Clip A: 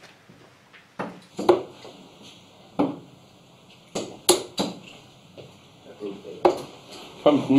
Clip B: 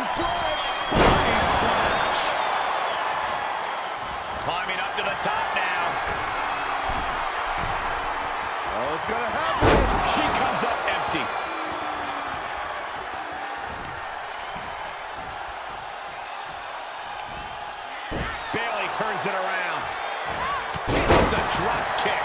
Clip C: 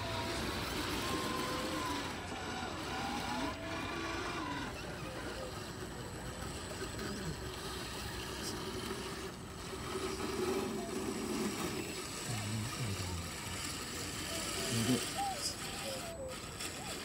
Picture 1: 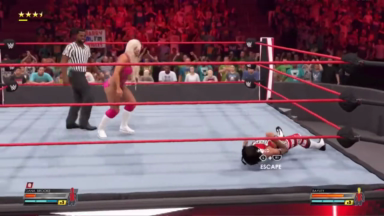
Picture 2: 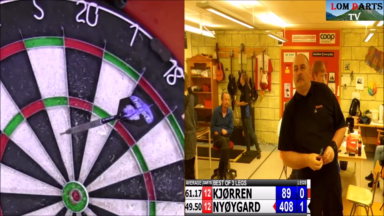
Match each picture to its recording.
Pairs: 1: B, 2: A